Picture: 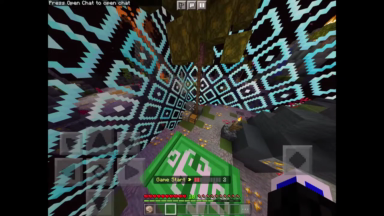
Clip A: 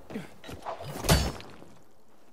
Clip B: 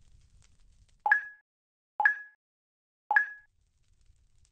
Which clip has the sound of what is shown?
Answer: B